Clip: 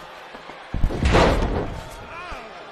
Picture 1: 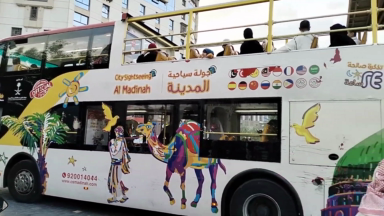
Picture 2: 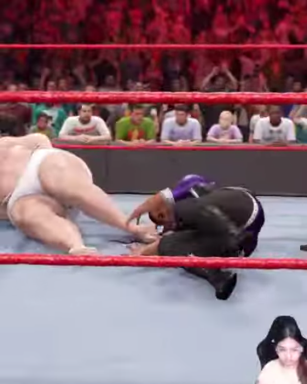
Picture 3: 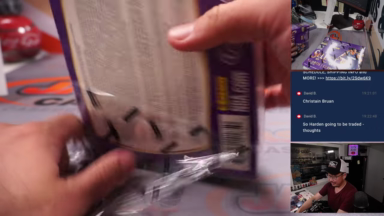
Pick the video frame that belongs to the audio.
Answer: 2